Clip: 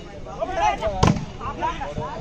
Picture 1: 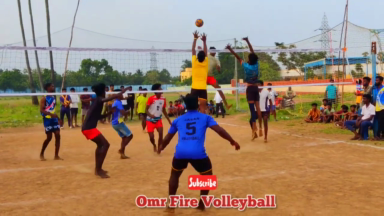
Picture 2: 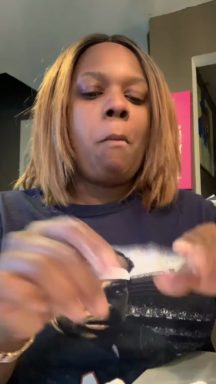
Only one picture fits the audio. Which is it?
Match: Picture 1